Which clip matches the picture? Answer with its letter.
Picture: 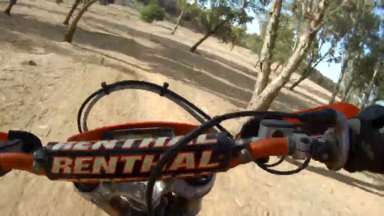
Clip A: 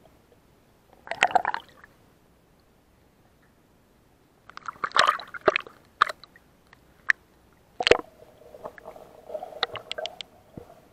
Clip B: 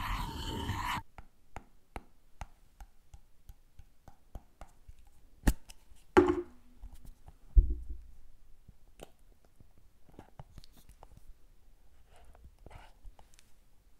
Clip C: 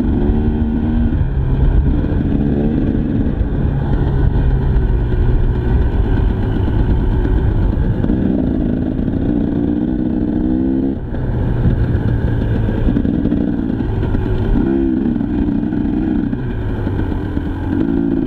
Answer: C